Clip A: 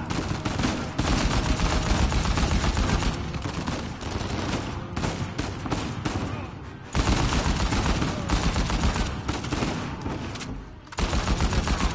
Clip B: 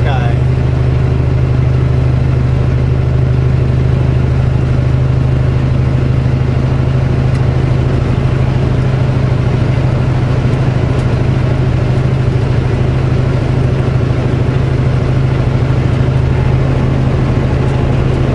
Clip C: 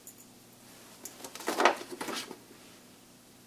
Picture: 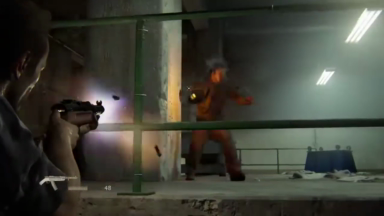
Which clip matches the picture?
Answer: A